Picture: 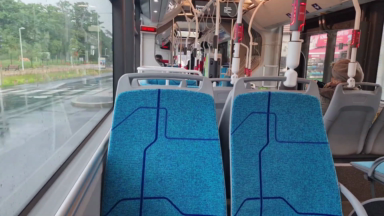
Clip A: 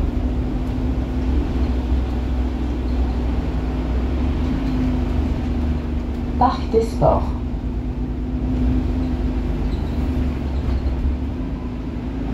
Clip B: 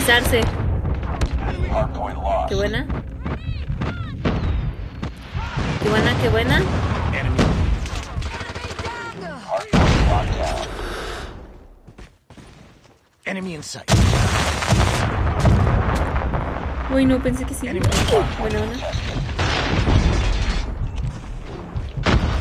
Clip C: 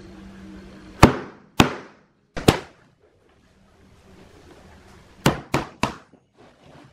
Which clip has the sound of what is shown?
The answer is A